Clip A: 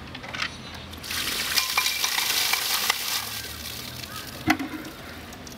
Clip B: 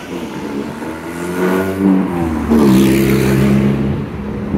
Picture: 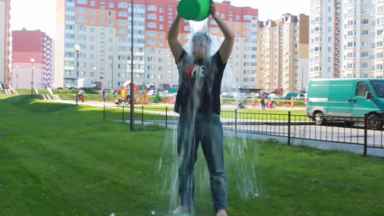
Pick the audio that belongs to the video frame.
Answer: A